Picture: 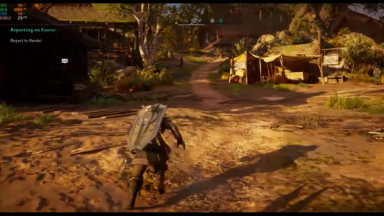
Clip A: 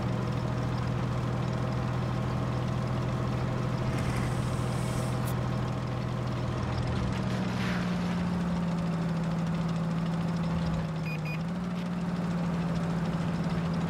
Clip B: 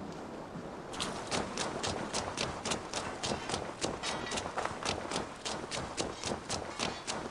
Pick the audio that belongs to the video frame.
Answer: B